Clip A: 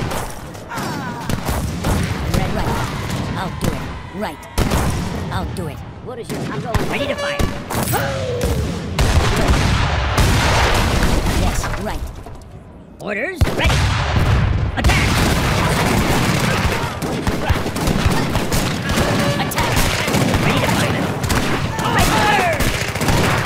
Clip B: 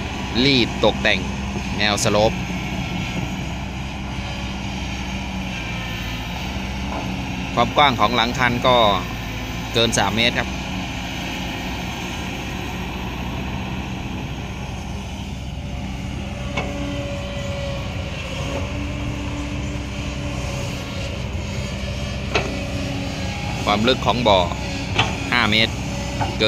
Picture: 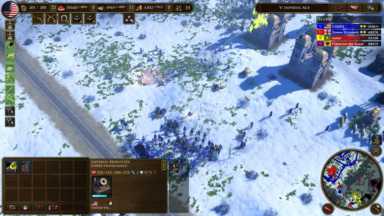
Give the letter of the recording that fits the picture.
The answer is A